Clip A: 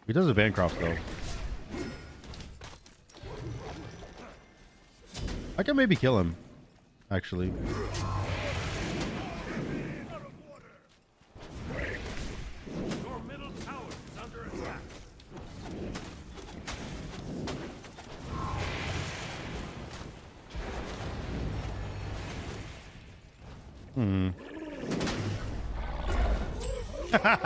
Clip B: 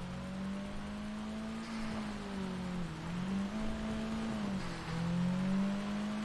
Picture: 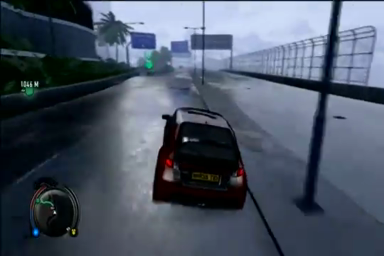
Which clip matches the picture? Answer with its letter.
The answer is B